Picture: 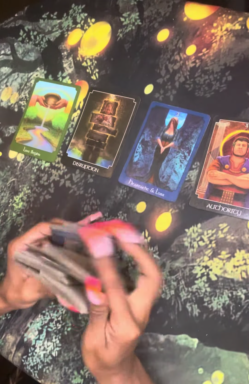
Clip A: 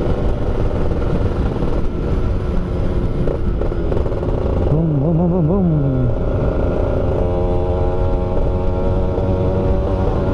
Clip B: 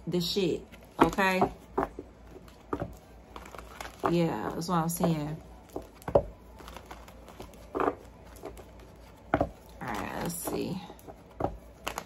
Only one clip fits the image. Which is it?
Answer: B